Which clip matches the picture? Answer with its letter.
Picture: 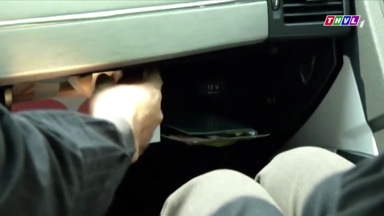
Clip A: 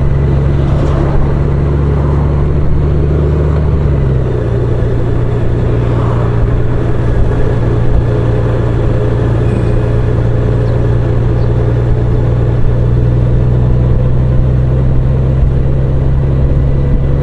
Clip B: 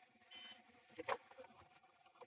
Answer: B